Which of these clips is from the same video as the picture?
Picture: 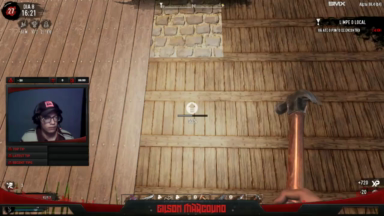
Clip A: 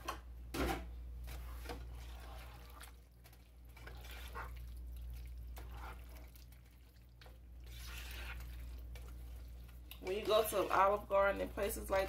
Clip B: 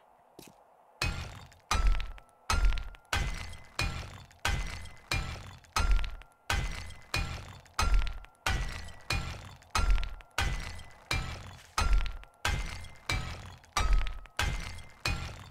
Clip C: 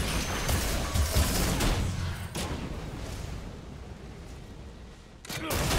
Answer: B